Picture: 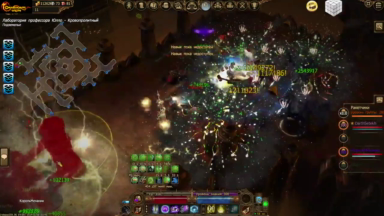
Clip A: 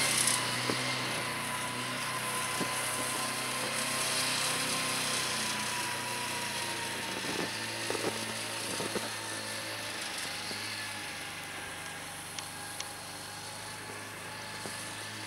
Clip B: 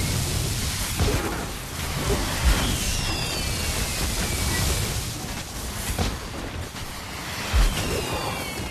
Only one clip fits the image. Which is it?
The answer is B